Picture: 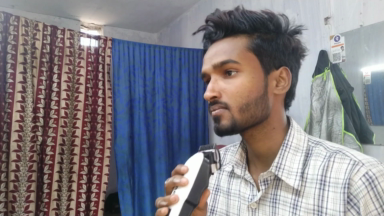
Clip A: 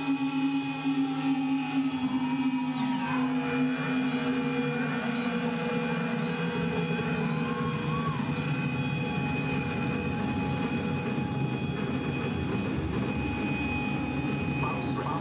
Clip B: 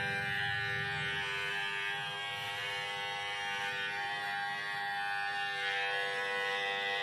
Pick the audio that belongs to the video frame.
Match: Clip B